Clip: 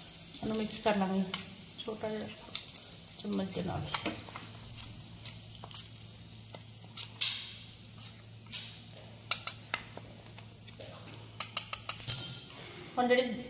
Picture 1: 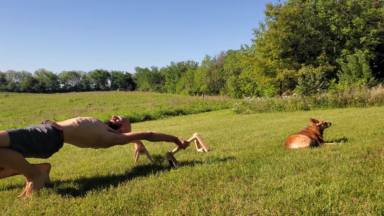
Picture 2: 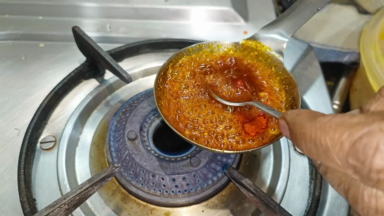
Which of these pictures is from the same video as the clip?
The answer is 2